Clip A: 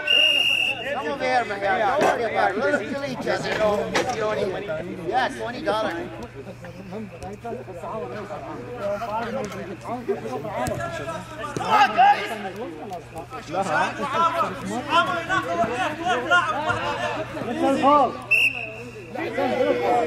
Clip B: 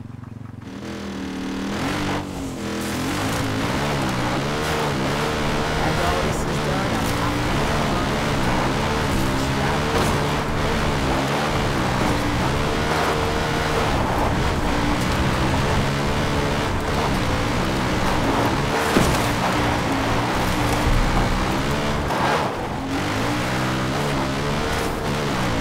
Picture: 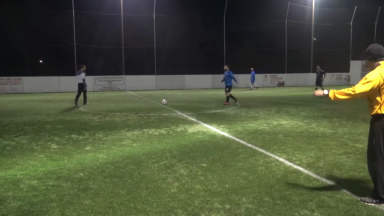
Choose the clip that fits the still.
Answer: A